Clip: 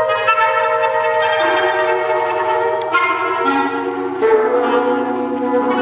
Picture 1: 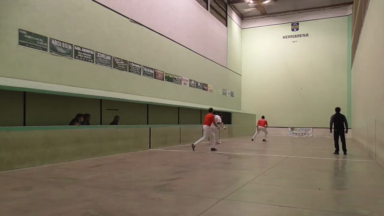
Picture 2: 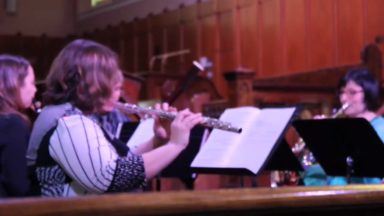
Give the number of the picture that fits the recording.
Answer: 2